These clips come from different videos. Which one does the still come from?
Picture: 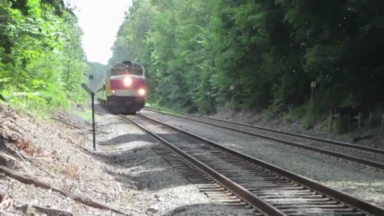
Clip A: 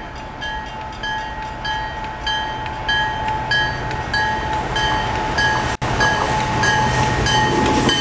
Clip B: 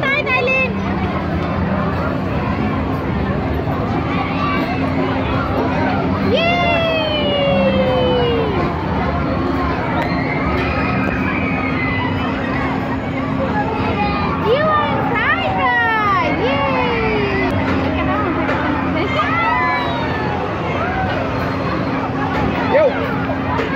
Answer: A